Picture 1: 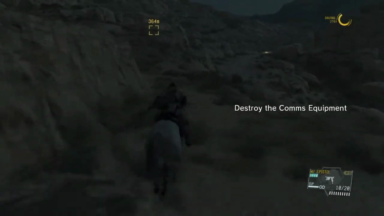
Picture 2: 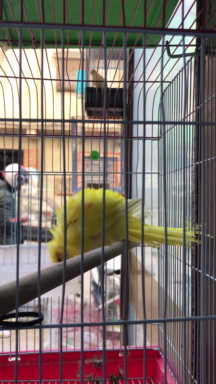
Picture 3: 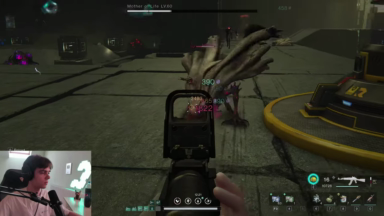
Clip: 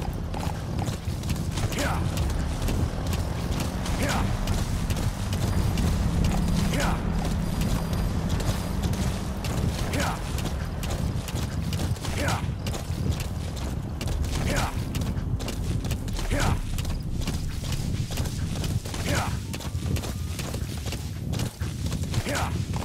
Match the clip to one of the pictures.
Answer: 1